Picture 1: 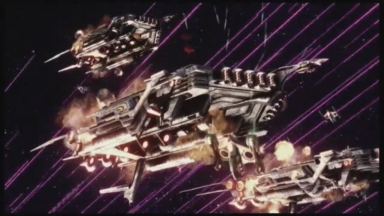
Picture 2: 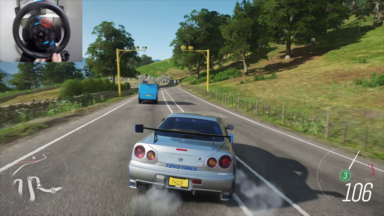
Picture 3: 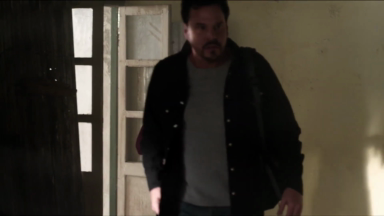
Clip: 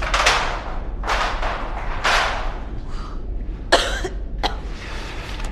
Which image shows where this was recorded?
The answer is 3